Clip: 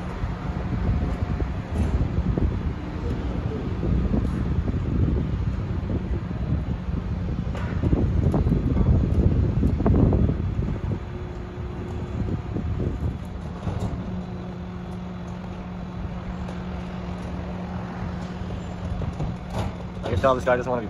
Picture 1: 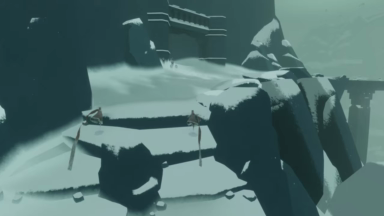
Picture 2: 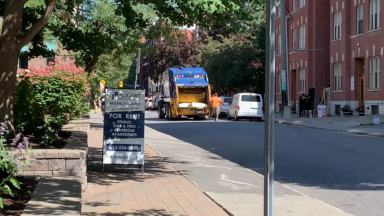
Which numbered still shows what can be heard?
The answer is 2